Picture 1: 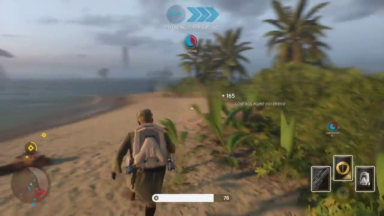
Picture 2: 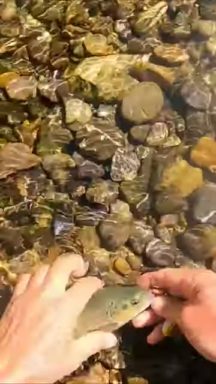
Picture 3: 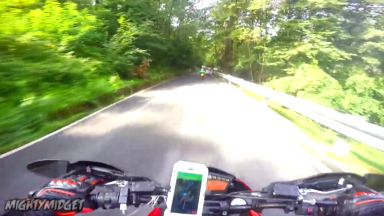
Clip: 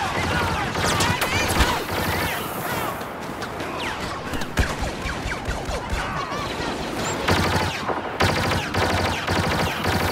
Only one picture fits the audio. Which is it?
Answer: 1